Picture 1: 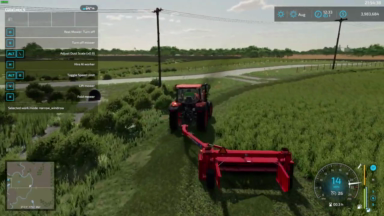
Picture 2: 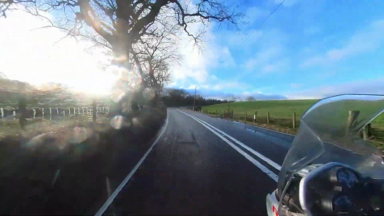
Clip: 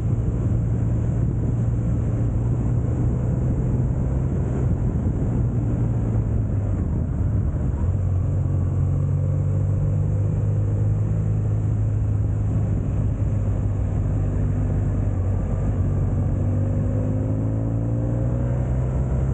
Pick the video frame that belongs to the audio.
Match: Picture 2